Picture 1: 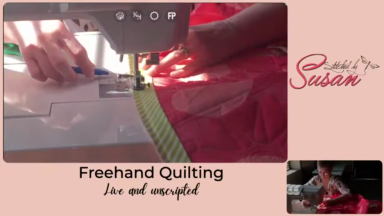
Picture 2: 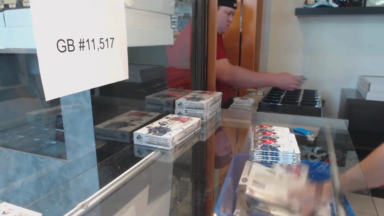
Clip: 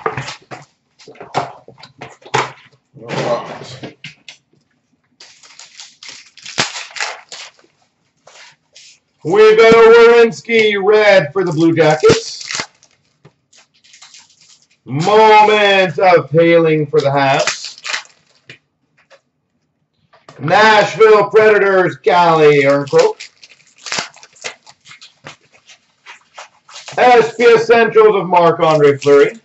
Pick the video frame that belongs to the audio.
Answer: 2